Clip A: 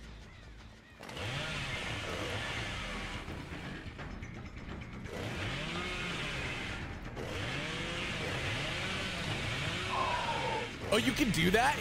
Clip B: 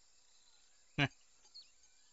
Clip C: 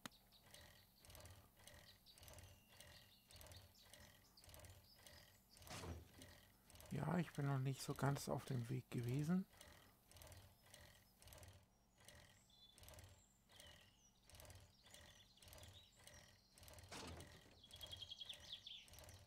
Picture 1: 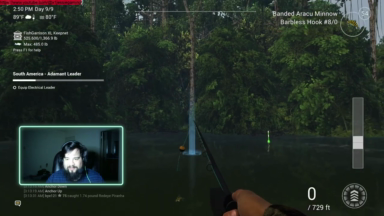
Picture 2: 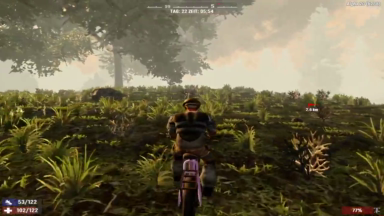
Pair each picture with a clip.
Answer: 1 B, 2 C